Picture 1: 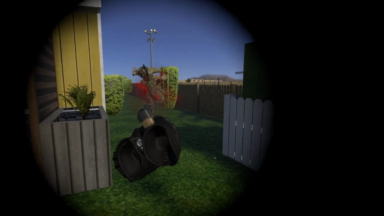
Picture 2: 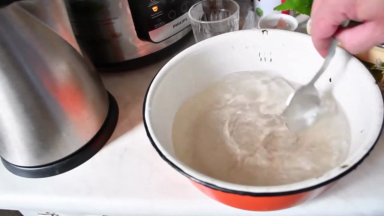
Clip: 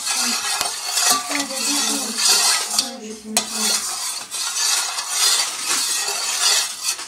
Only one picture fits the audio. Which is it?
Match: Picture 2